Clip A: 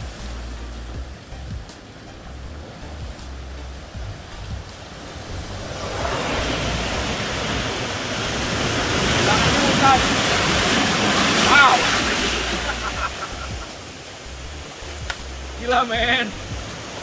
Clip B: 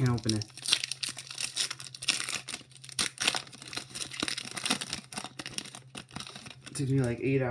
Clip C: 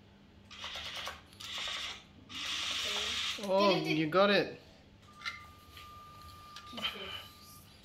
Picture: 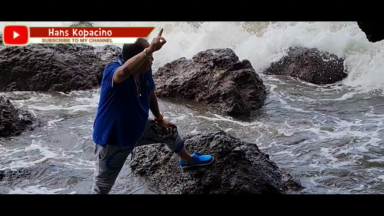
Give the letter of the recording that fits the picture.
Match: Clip A